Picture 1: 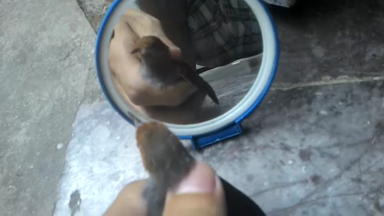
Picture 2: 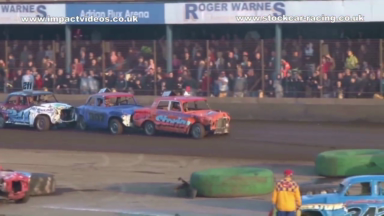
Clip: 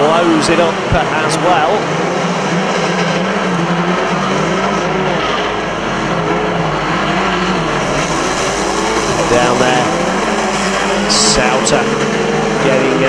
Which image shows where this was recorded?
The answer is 2